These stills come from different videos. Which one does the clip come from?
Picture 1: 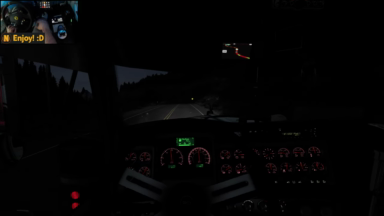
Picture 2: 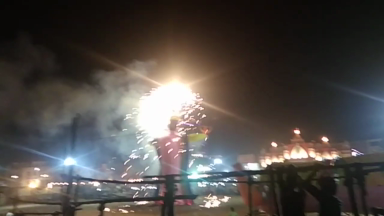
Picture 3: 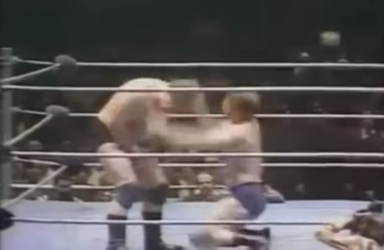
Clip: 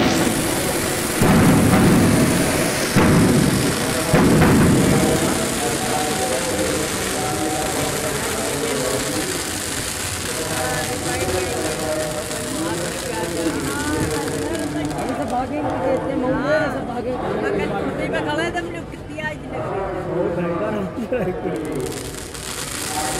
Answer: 2